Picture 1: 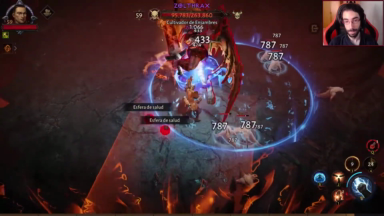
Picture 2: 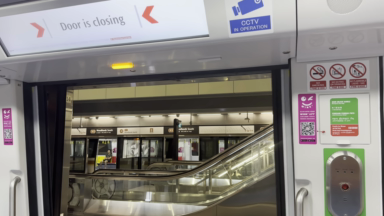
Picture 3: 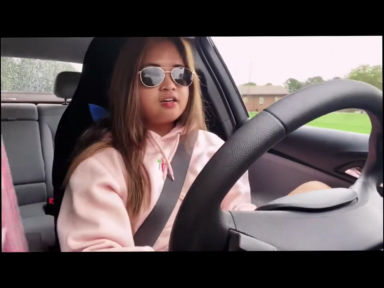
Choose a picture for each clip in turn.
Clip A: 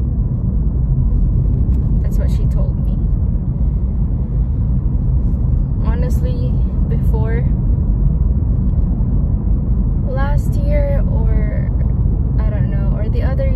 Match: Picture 3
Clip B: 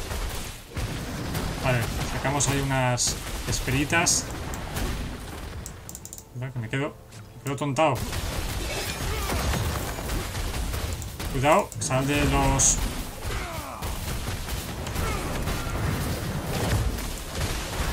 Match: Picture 1